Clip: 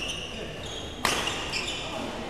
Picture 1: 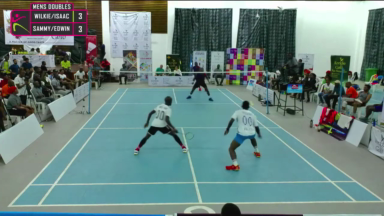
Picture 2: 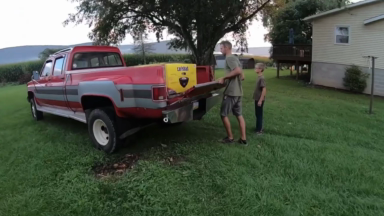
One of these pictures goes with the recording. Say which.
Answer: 1